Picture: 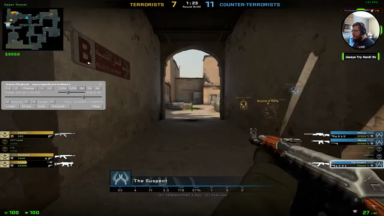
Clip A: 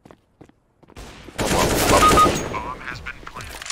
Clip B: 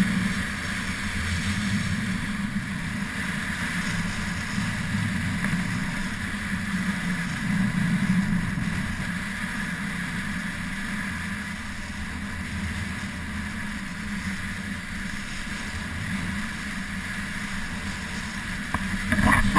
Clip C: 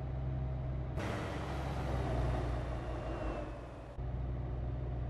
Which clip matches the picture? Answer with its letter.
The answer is A